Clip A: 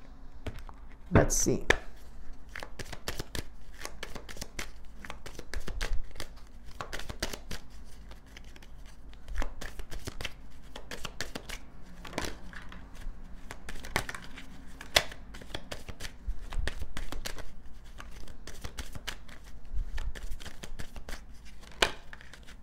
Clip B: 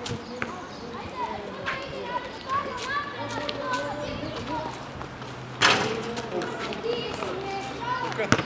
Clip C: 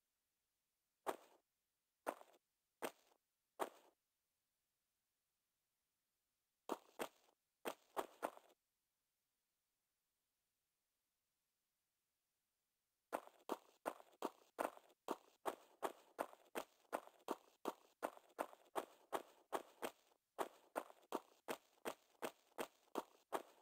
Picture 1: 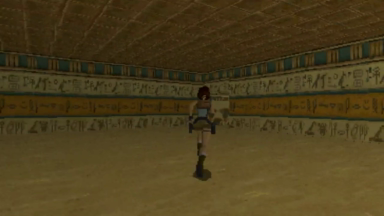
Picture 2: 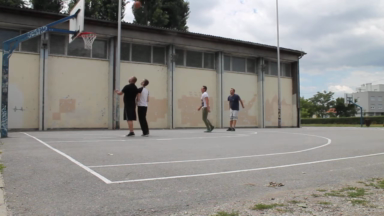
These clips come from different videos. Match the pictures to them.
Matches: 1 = C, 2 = B